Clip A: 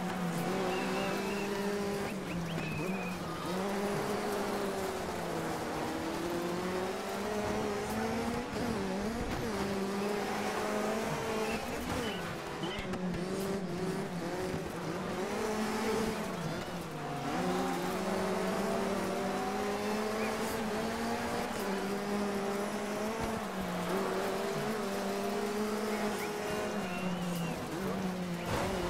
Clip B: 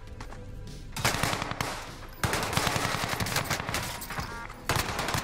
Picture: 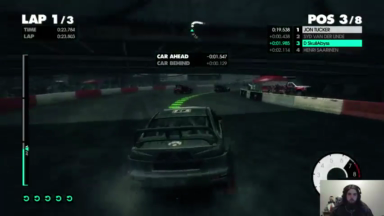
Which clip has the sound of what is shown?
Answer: A